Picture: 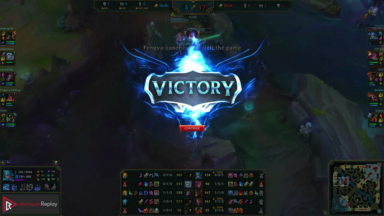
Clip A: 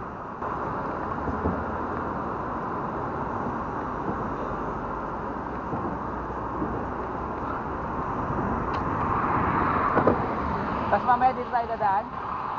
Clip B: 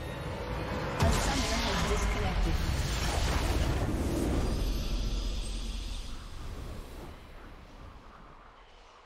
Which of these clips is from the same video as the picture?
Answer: B